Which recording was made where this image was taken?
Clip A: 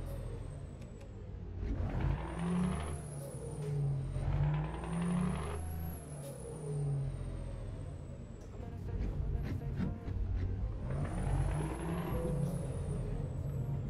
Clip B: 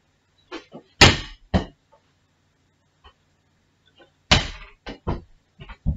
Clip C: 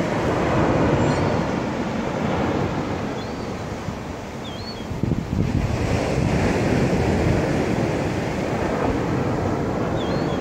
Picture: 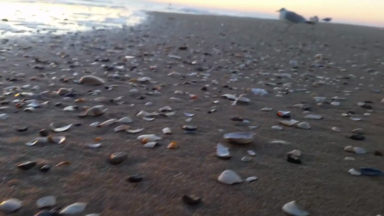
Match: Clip C